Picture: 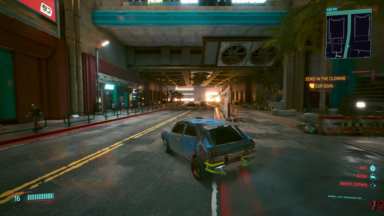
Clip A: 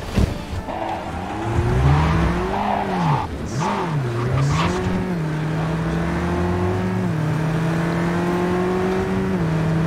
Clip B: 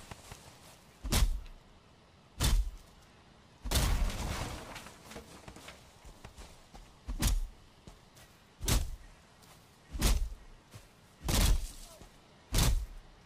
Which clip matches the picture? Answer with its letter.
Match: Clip A